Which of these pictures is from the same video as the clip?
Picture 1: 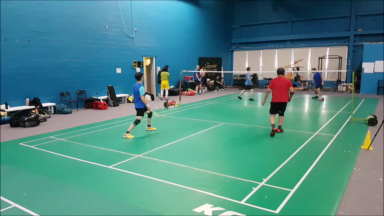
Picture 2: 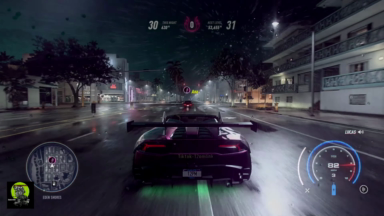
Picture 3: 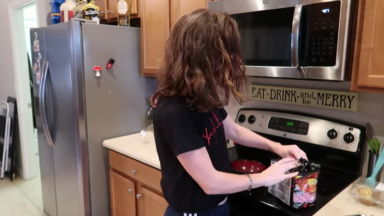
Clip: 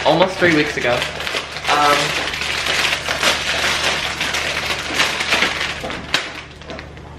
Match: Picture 3